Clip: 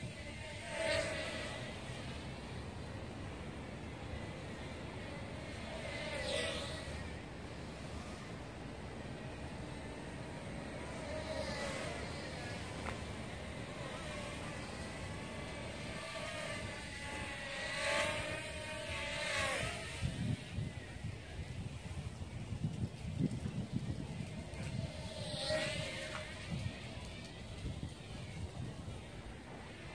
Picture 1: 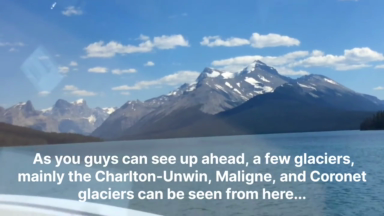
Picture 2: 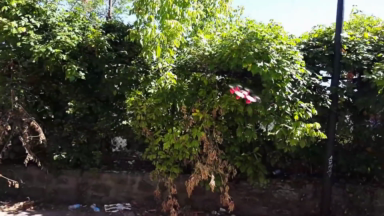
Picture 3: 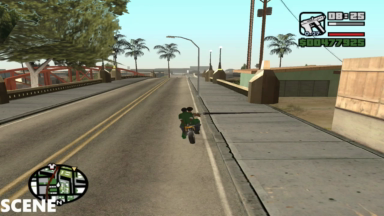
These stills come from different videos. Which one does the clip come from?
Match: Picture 2